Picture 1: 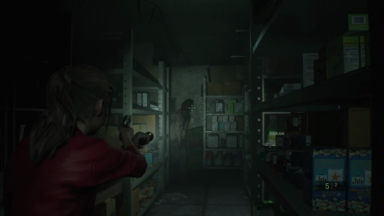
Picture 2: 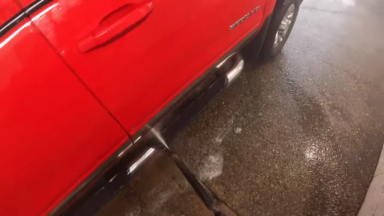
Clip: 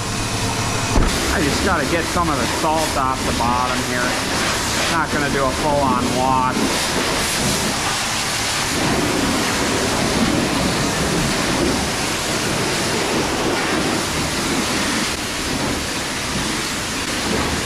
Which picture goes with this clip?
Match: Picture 2